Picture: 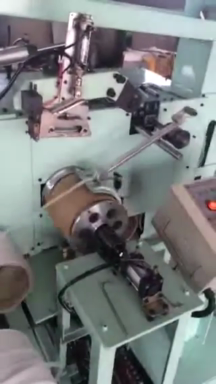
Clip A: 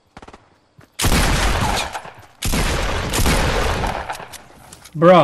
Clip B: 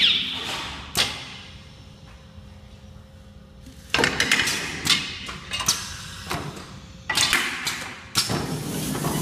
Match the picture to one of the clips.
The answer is B